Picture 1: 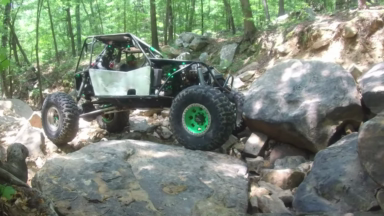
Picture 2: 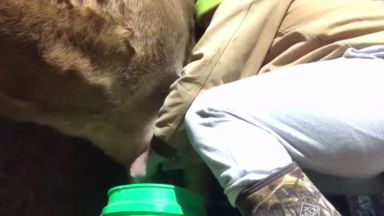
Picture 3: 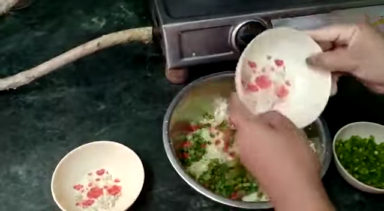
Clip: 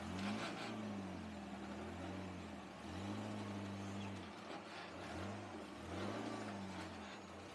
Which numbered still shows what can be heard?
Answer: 1